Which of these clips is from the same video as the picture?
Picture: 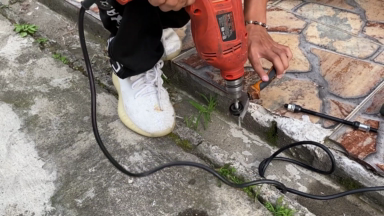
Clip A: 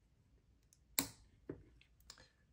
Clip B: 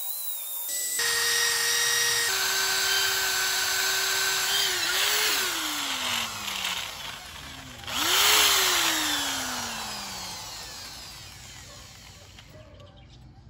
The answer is B